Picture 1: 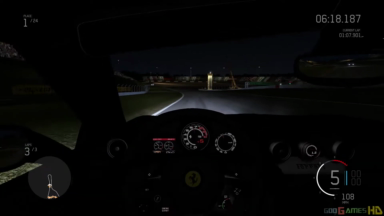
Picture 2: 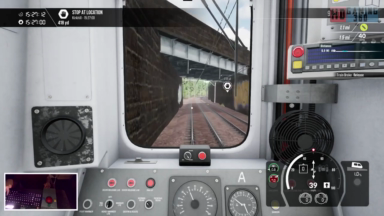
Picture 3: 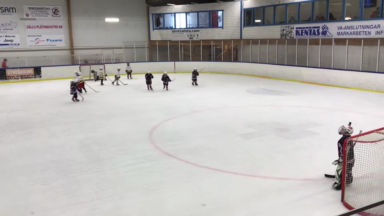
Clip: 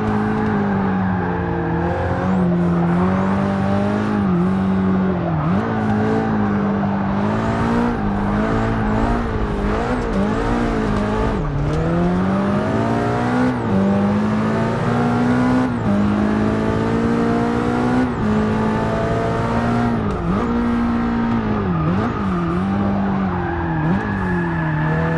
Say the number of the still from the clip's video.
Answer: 1